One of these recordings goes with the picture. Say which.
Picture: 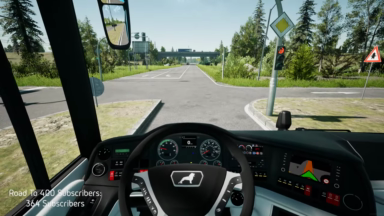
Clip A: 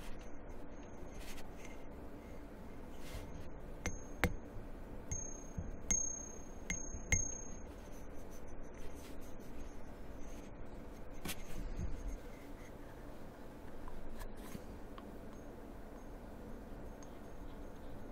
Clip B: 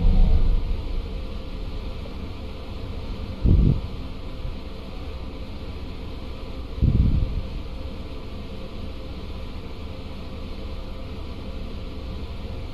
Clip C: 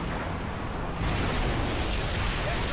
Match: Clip B